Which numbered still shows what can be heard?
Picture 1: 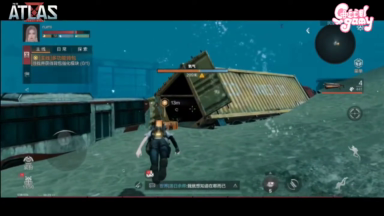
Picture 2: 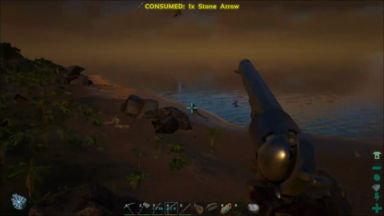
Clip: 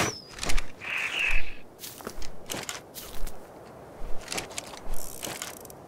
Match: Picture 2